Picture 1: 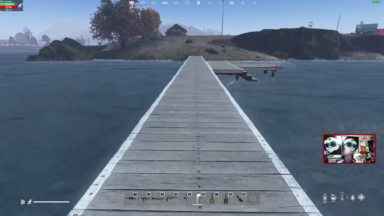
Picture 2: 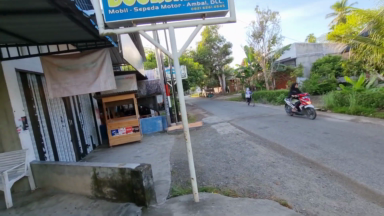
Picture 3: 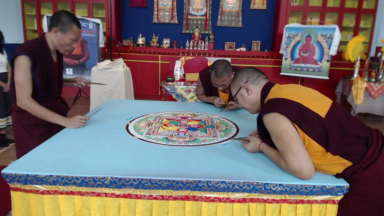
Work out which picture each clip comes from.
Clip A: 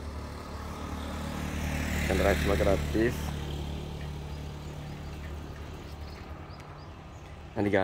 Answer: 2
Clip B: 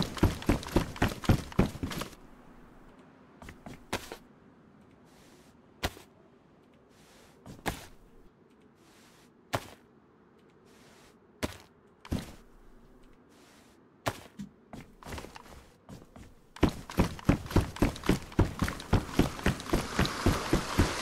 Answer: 1